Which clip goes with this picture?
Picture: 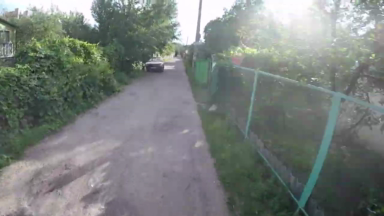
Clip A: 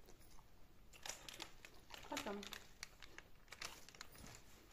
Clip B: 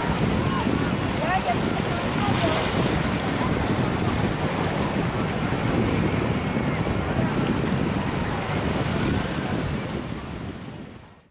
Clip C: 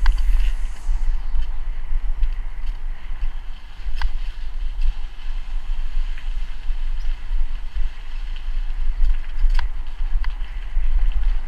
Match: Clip C